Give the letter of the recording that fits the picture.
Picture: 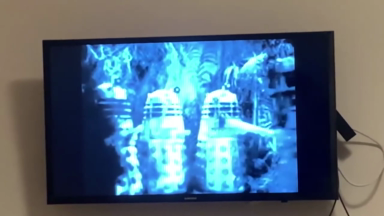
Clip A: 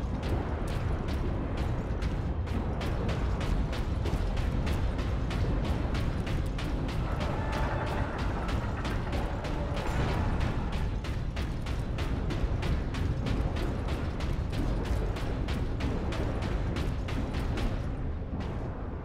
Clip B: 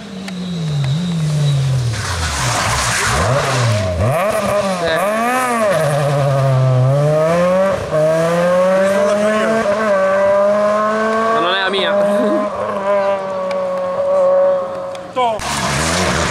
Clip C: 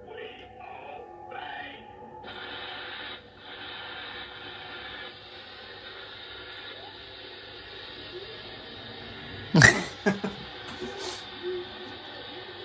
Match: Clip C